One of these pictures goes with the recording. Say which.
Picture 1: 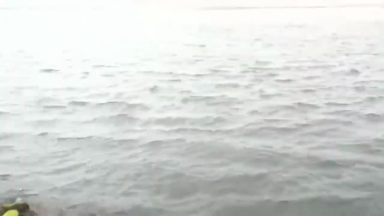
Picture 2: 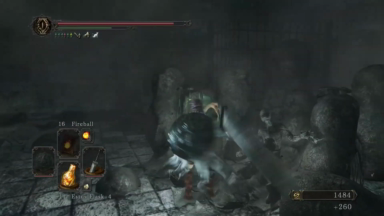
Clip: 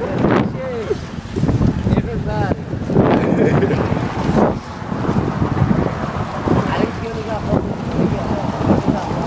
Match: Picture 1